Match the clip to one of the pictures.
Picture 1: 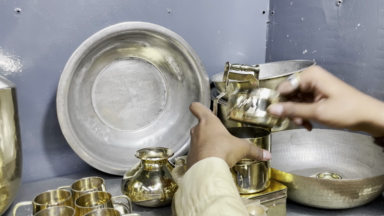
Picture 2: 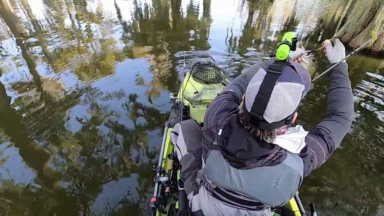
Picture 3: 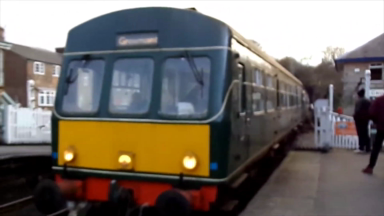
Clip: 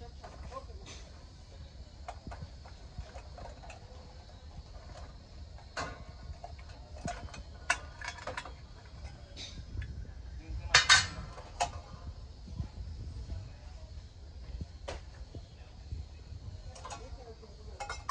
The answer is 1